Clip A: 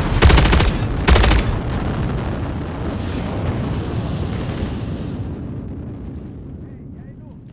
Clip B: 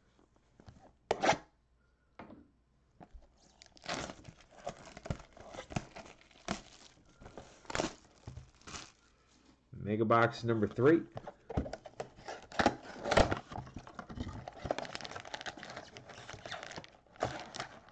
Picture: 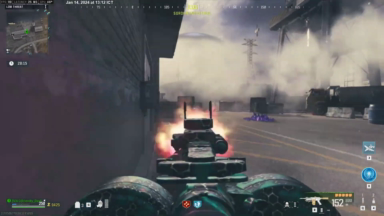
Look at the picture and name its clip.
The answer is A